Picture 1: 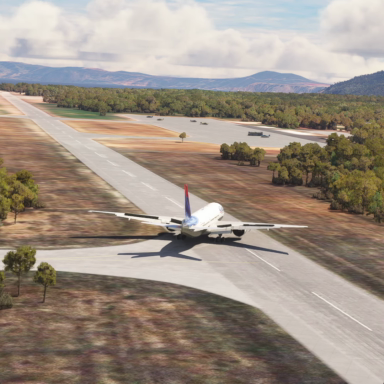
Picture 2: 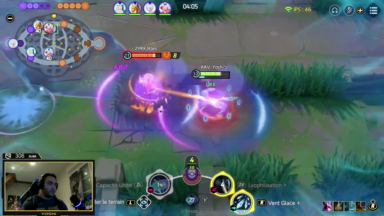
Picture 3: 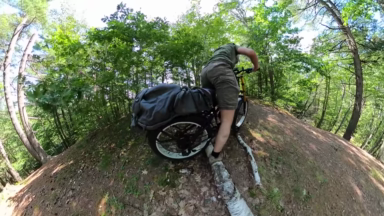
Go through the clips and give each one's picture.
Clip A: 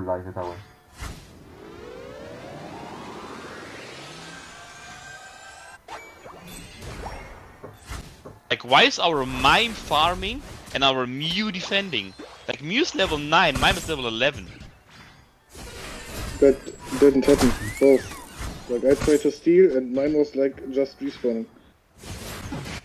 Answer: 2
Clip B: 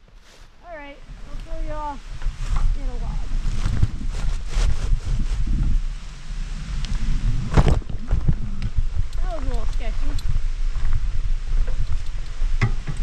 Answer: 3